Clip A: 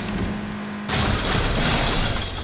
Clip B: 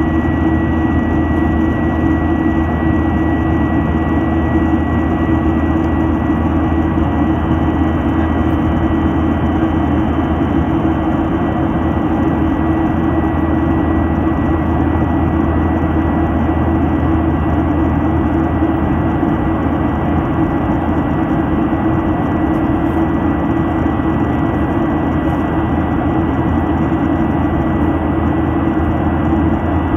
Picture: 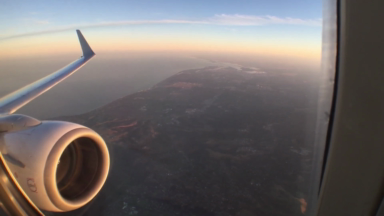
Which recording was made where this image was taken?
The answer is B